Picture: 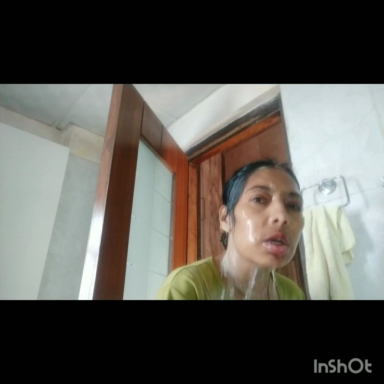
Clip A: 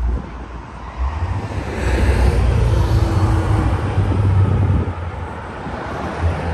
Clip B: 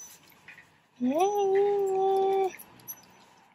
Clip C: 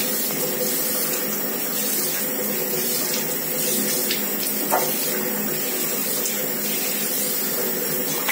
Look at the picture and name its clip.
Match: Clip C